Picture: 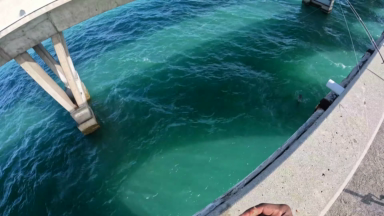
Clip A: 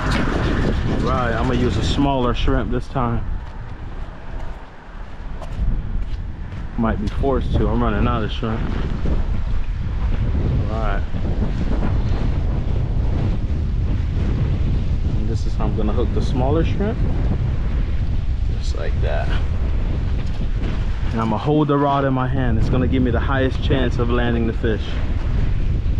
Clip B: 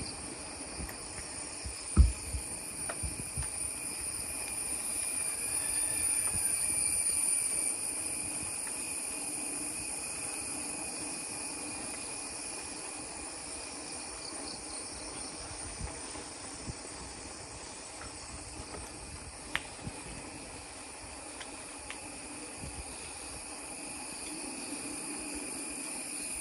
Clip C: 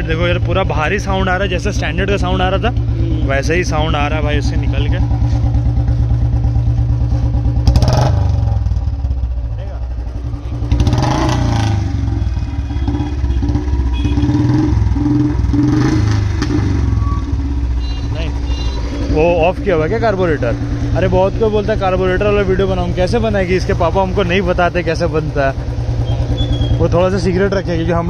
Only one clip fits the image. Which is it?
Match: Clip A